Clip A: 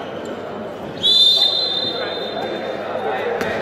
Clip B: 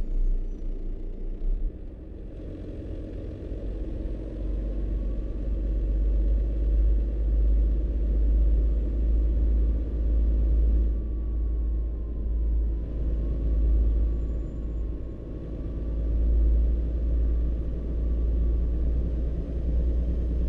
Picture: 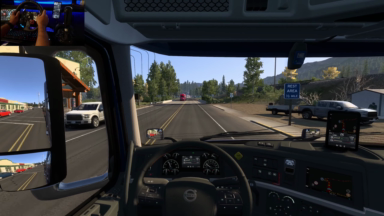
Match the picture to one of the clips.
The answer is B